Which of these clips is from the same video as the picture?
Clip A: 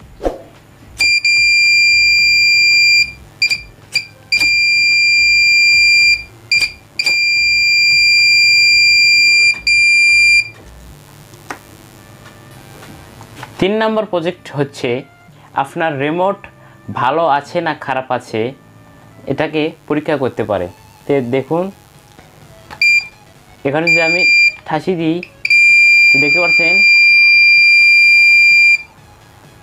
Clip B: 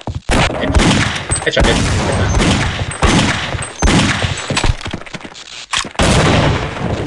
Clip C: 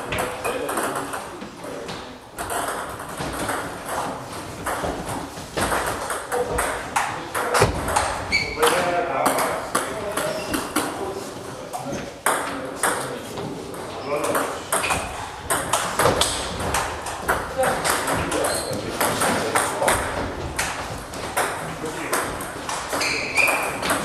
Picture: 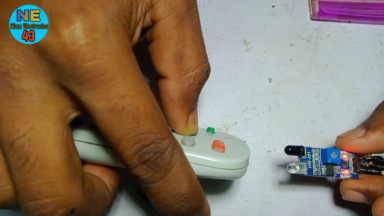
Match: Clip A